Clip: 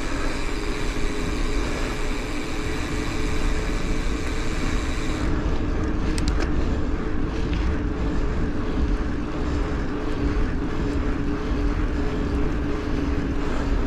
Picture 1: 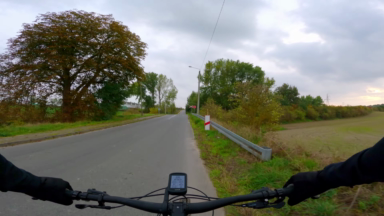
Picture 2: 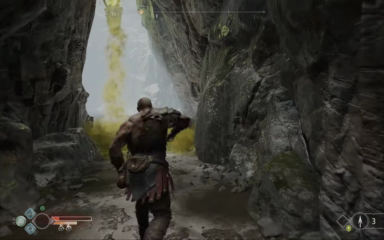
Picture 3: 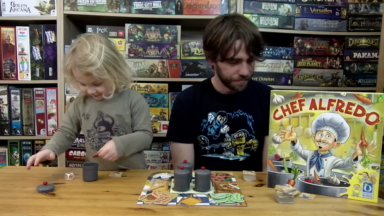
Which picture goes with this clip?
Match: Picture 1